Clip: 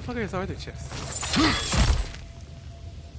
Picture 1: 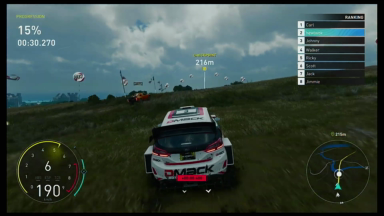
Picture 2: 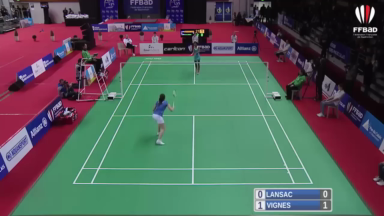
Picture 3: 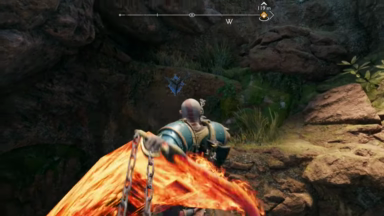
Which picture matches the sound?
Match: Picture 3